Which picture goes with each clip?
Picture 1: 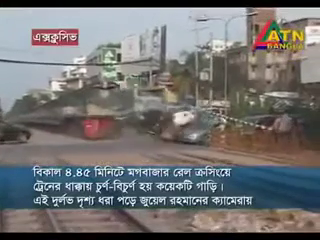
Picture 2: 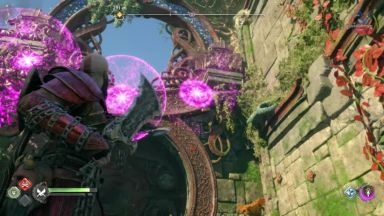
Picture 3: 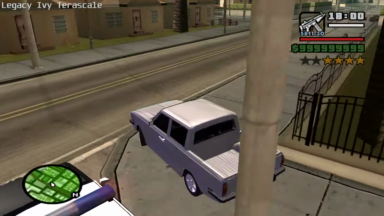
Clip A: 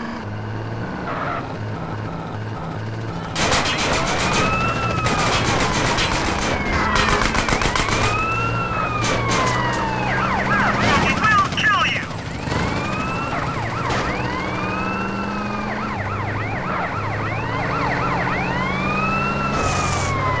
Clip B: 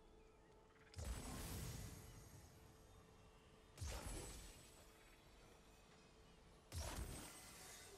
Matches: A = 3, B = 2